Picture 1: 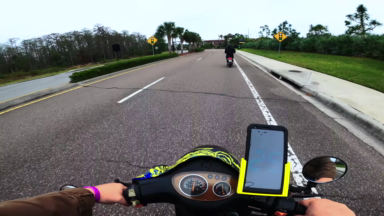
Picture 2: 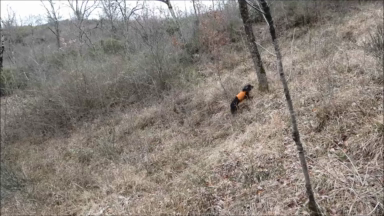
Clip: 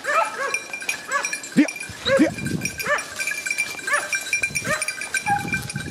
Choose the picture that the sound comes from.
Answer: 2